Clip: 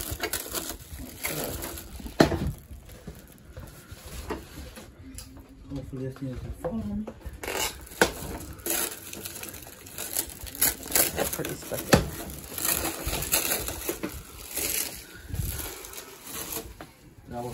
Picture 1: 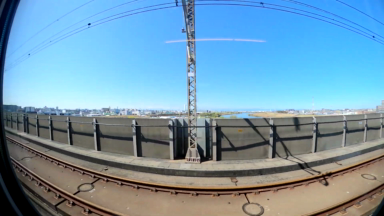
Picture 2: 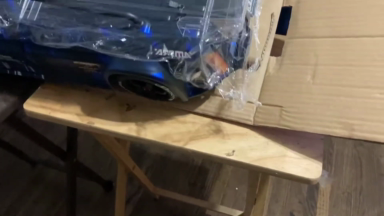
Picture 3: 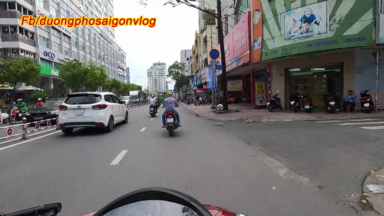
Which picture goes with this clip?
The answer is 2